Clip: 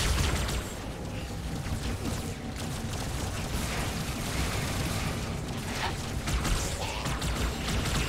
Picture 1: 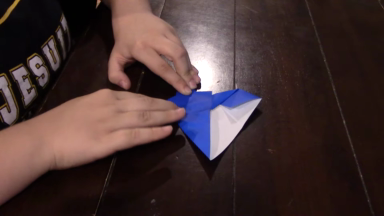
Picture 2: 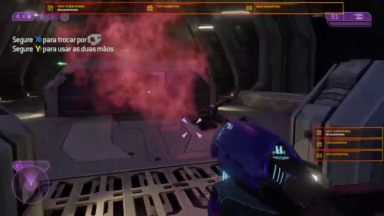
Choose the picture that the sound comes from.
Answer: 2